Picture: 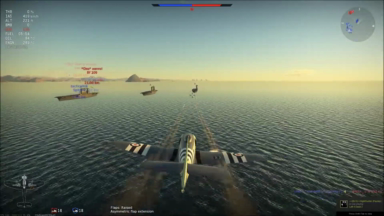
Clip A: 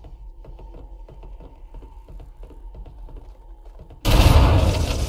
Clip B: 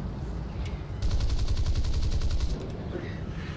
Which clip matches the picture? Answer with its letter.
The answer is B